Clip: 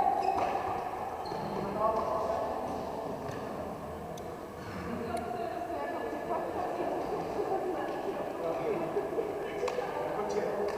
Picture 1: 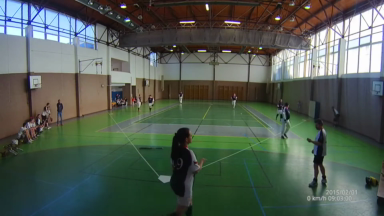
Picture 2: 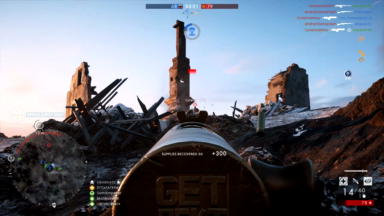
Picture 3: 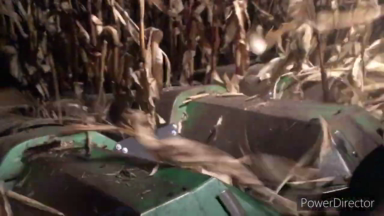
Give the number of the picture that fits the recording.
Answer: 1